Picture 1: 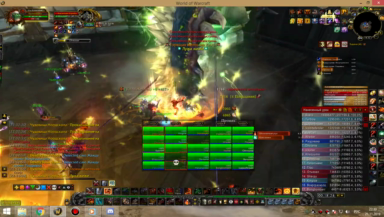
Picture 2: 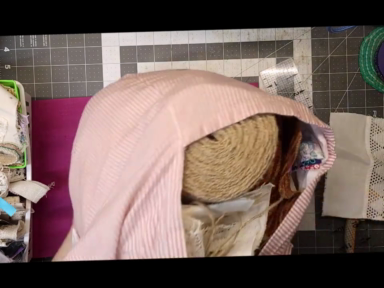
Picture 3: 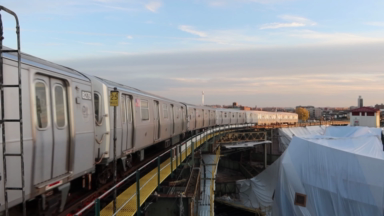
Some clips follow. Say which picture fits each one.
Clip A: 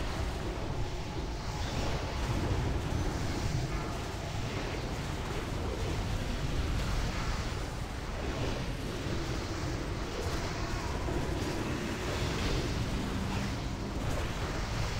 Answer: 1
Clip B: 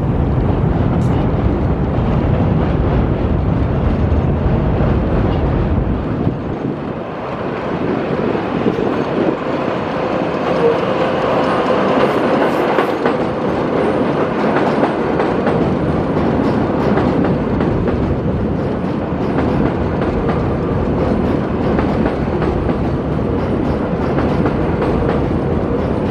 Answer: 3